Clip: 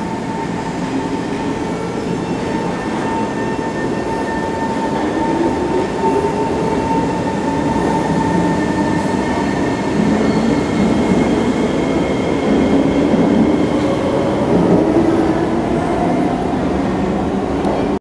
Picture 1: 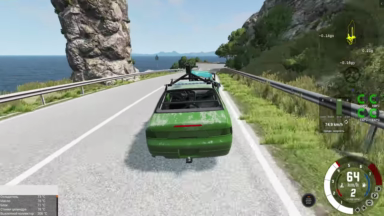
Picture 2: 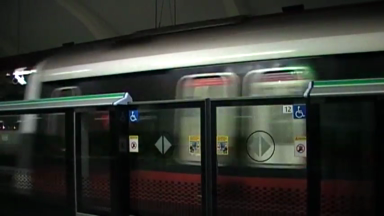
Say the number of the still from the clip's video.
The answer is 2